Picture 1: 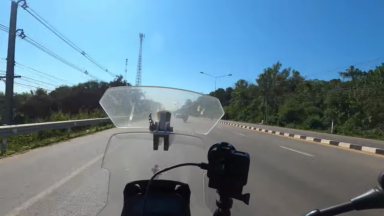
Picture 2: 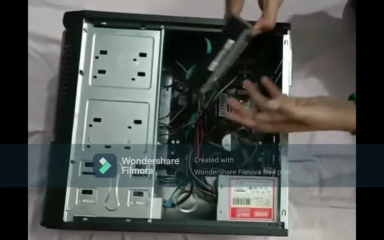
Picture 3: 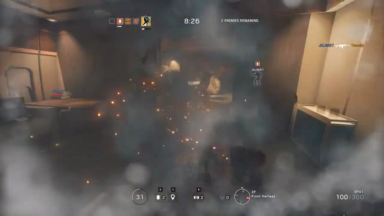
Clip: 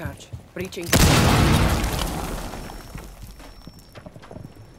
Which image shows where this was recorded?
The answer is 3